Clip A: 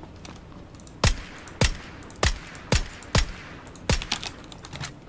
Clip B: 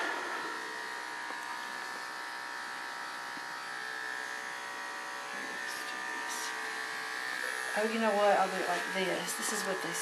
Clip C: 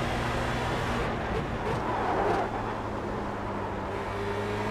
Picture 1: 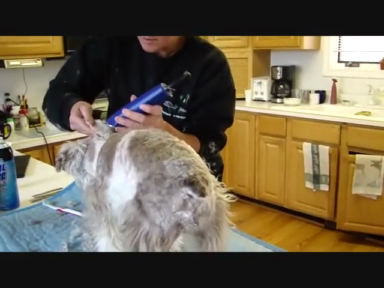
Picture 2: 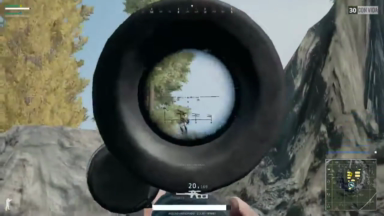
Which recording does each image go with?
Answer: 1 B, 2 A